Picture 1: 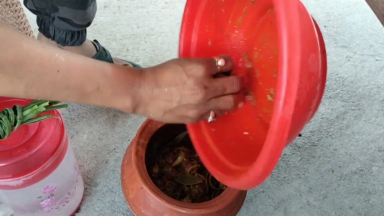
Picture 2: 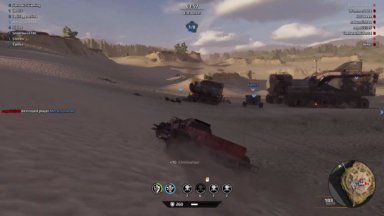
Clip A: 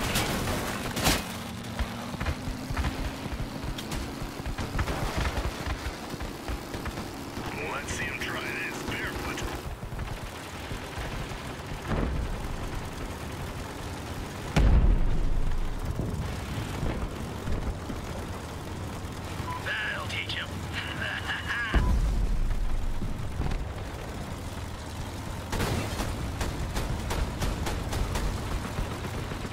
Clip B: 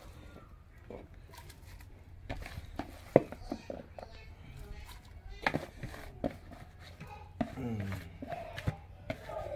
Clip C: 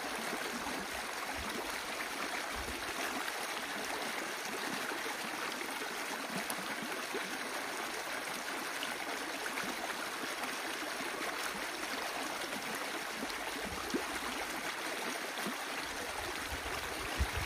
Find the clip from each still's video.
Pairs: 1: B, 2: A